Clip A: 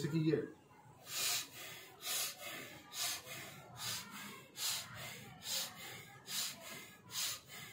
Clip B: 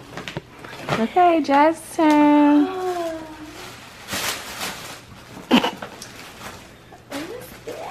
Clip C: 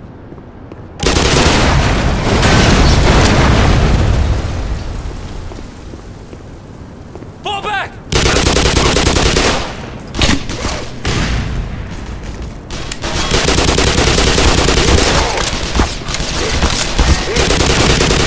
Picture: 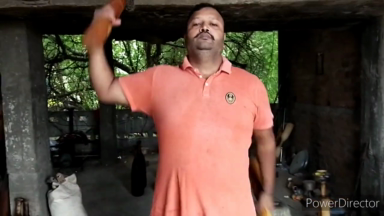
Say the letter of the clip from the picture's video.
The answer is A